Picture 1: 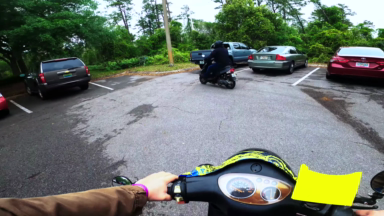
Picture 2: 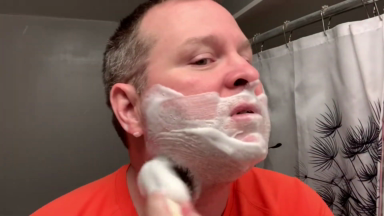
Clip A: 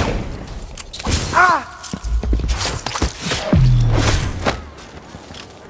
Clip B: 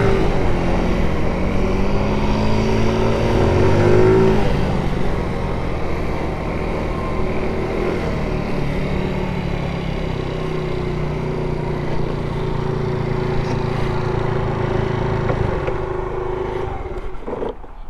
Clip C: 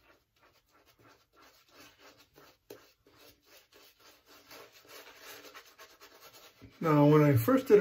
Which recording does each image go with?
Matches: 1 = B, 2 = C